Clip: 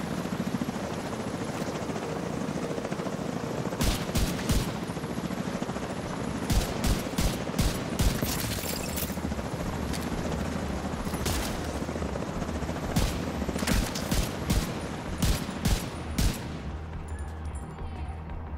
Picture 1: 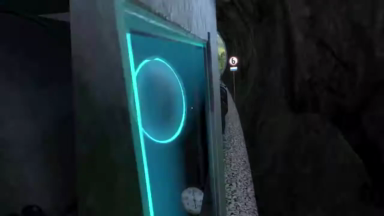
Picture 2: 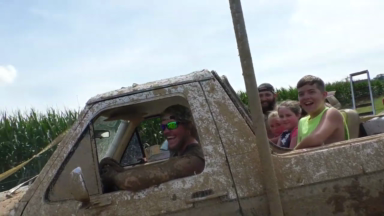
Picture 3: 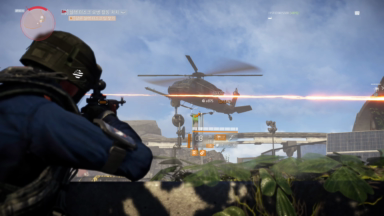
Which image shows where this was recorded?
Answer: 3